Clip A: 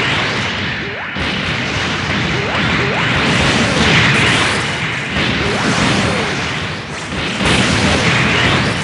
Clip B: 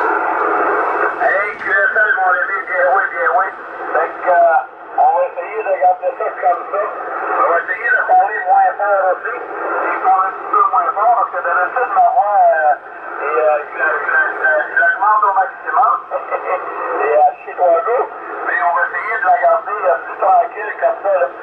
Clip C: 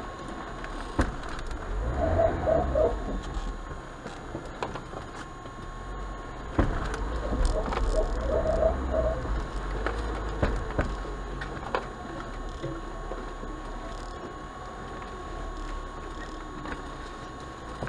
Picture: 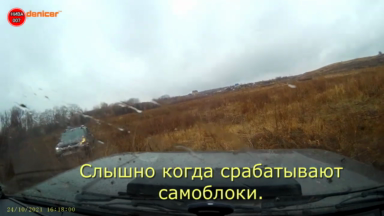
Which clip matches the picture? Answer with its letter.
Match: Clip C